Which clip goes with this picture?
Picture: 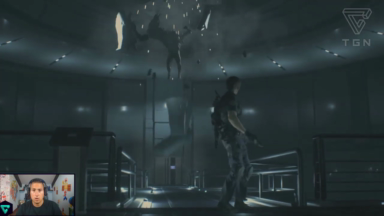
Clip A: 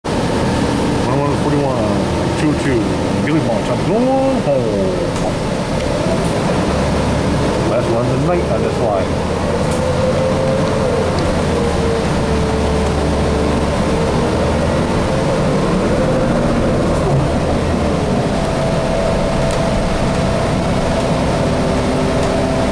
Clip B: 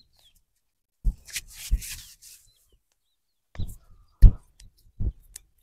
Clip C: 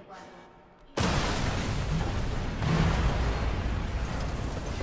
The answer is C